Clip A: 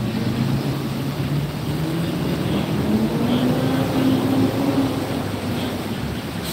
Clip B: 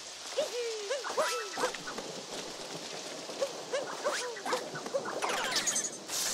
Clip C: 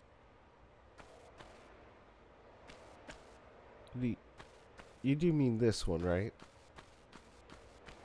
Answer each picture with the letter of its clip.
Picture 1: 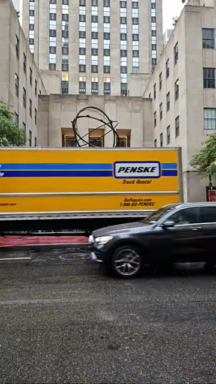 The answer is A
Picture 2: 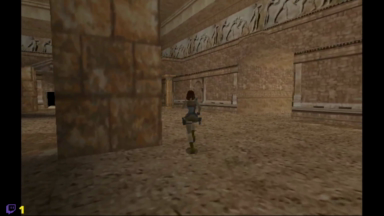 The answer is C